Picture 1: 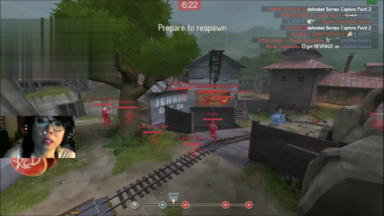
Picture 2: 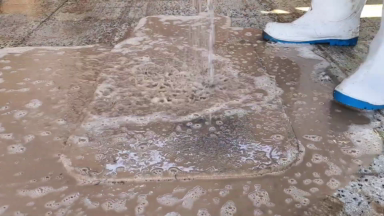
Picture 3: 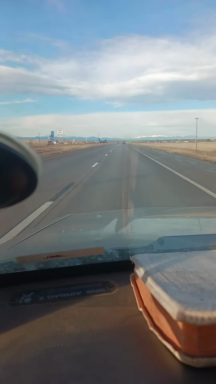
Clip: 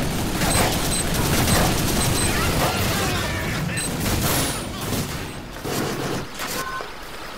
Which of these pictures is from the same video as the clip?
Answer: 1